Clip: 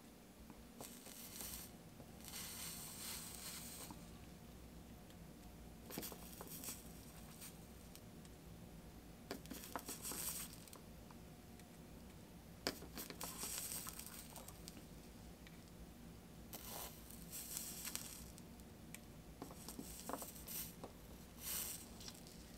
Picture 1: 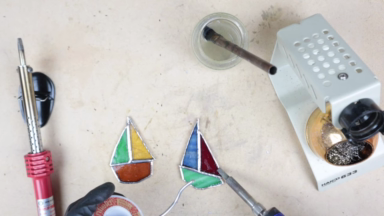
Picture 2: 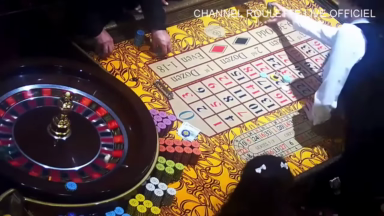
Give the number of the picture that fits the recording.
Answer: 1